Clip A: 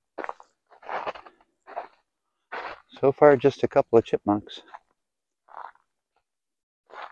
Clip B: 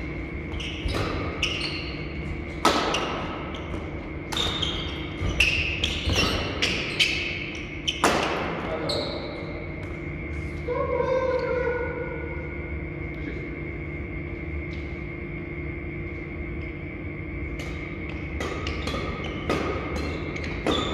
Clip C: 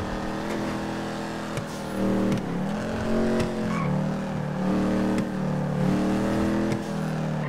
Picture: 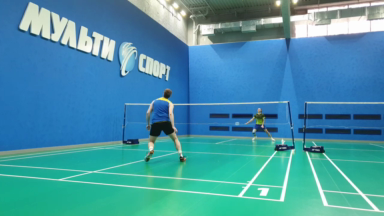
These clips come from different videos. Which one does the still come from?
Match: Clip B